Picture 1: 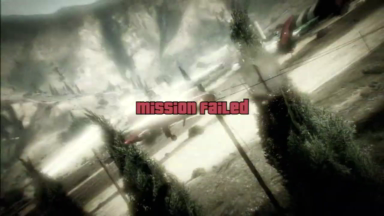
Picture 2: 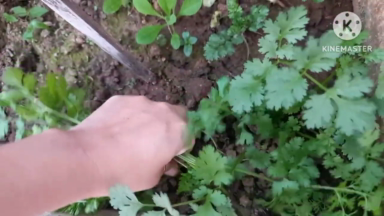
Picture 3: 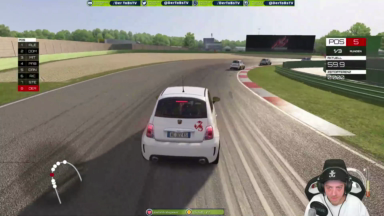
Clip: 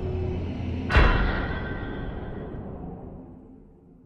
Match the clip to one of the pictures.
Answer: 1